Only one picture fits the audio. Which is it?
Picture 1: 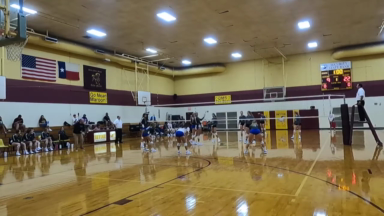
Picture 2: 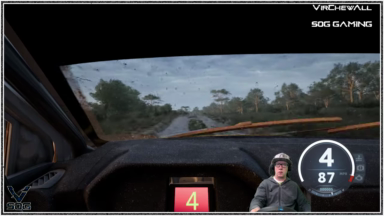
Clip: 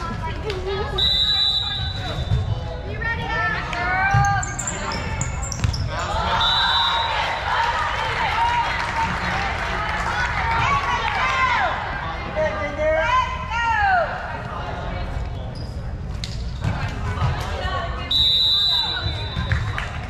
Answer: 1